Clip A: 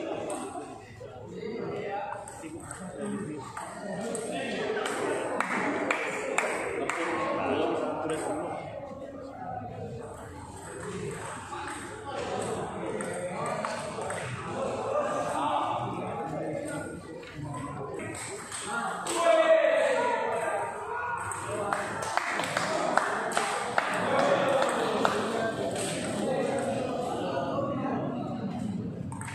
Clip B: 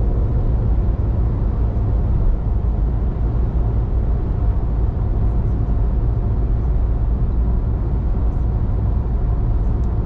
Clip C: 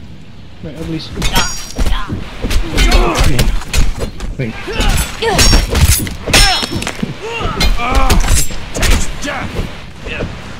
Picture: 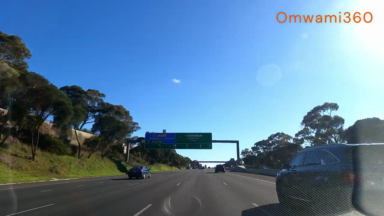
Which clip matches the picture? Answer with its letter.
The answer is B